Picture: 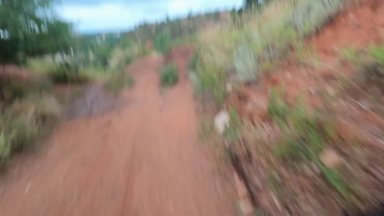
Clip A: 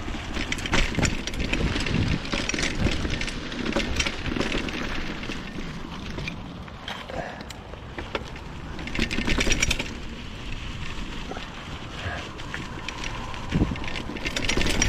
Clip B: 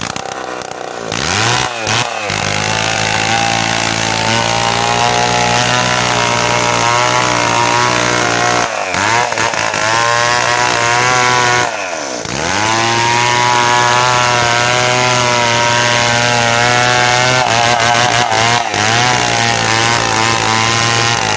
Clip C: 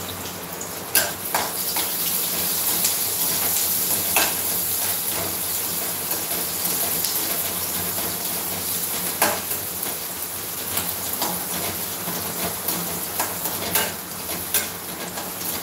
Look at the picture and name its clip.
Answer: A